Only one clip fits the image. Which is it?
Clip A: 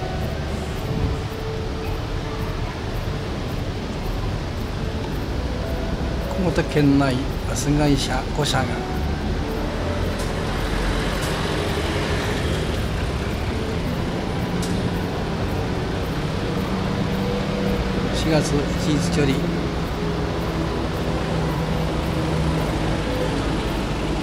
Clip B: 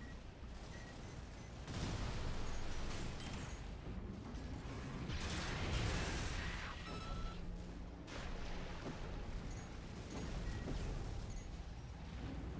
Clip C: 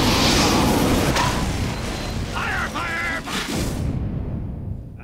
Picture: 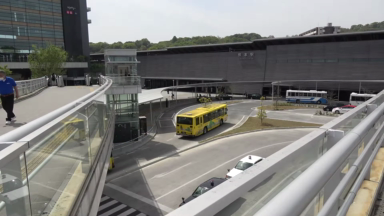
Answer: A